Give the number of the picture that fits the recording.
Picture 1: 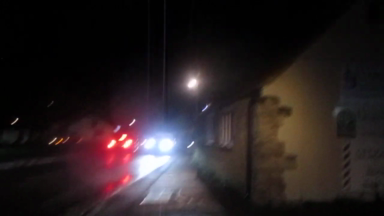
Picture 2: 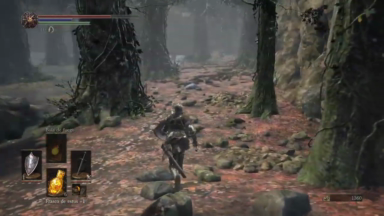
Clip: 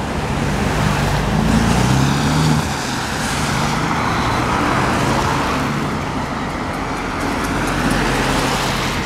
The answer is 1